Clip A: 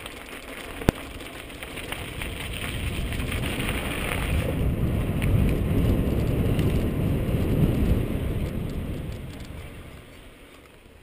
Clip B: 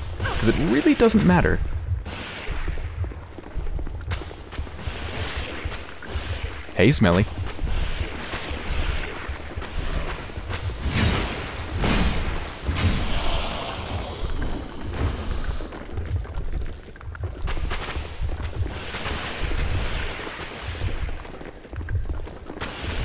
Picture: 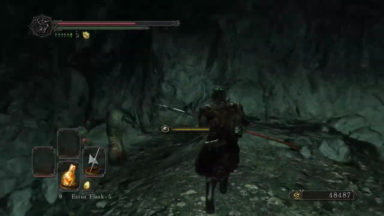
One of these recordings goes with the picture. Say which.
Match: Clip B